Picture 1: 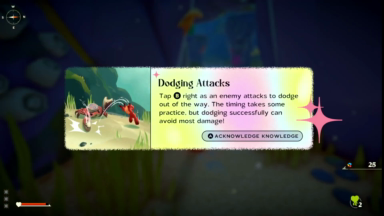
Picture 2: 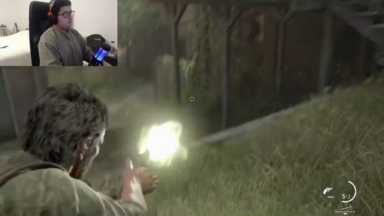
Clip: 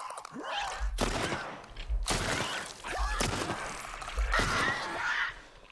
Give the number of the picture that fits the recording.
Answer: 2